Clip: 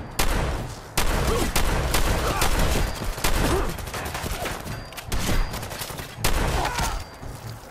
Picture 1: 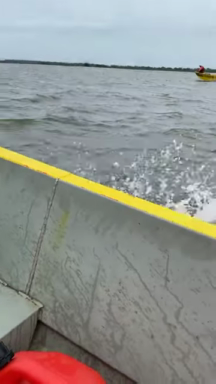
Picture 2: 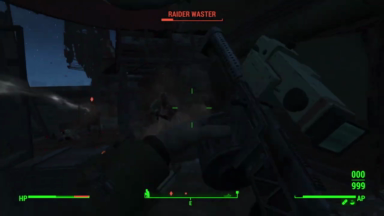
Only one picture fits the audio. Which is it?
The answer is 2